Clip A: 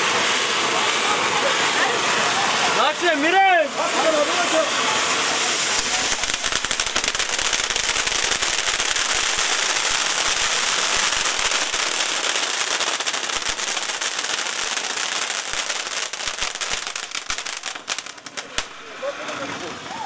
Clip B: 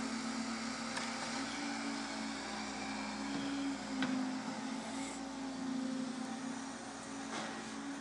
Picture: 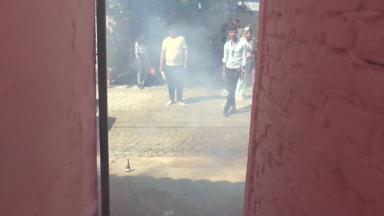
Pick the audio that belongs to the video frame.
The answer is A